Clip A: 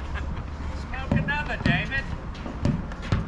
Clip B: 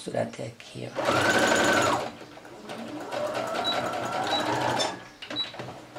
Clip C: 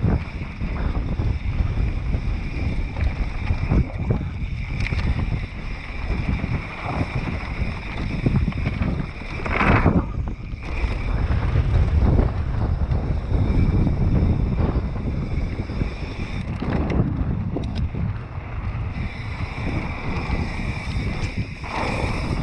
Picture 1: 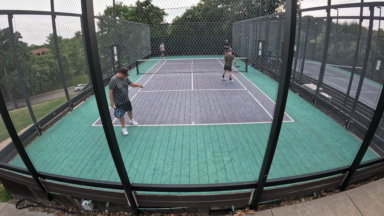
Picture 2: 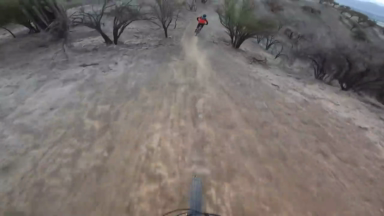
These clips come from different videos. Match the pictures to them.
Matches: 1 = A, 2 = C